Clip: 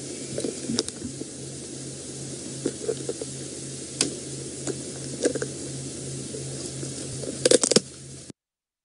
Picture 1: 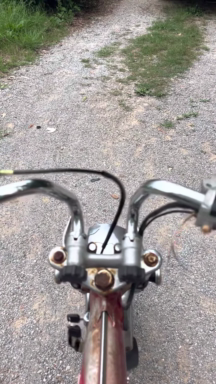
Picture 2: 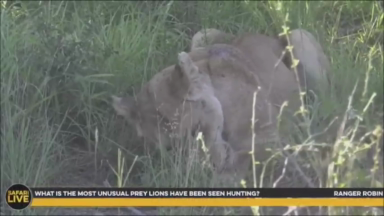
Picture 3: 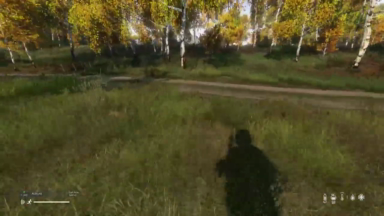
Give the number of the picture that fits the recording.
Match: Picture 2